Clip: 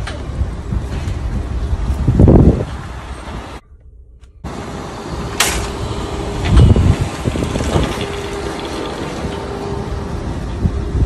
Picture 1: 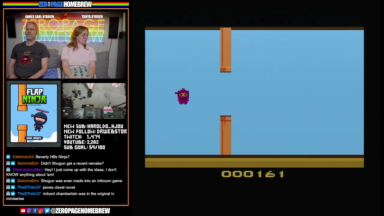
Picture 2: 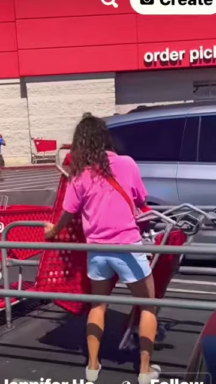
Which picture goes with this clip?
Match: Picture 2